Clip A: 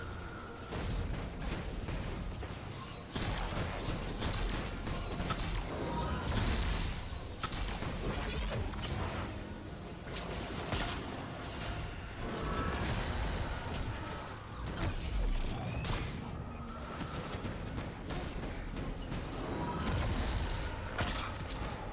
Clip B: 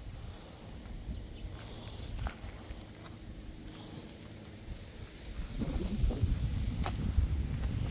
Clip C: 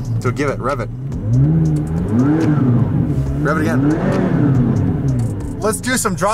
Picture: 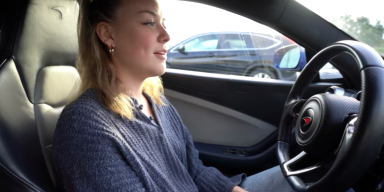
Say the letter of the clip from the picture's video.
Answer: C